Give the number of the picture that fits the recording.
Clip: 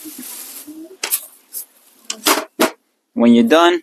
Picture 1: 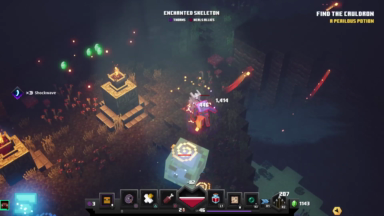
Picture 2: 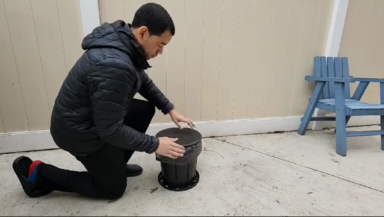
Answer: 2